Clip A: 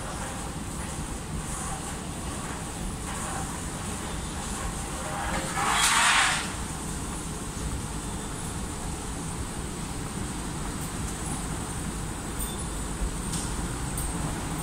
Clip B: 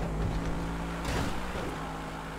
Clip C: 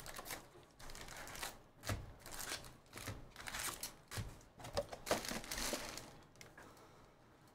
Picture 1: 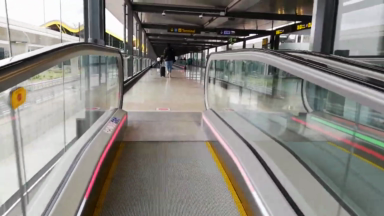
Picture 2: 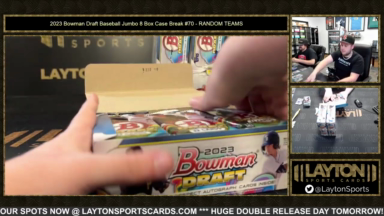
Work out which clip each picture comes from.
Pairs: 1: A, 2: C